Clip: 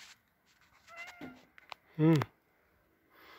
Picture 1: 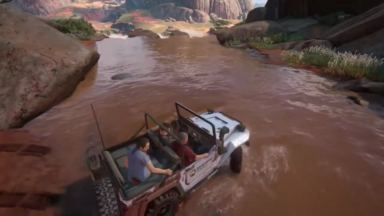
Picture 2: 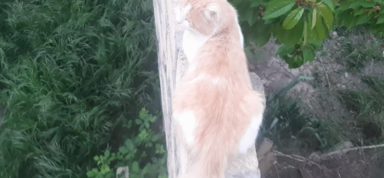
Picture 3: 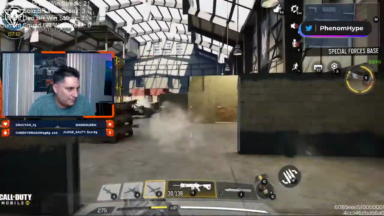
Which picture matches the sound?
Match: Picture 2